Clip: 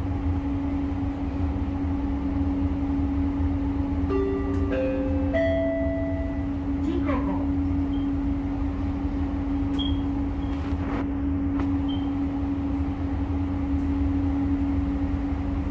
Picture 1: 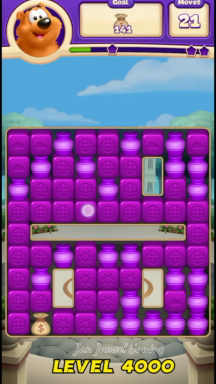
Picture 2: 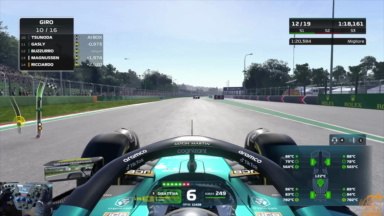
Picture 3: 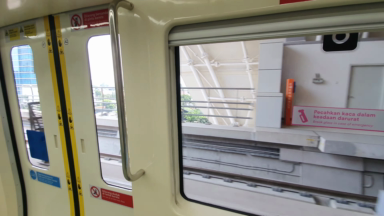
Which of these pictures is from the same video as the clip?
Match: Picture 3